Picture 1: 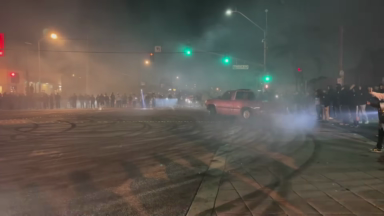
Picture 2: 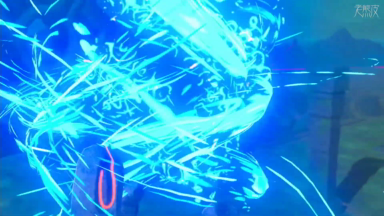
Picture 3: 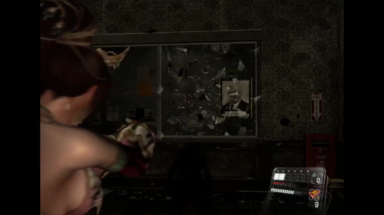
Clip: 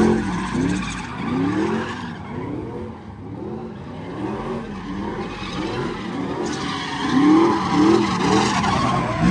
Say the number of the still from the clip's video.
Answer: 1